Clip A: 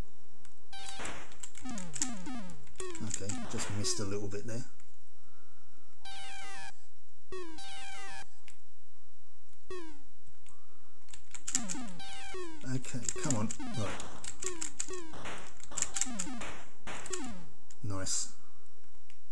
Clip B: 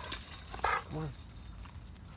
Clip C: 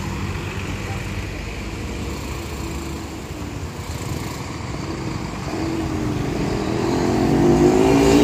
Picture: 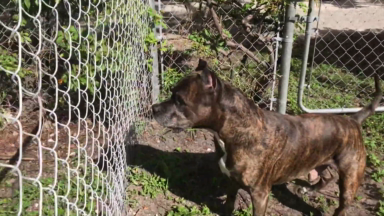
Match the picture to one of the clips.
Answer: B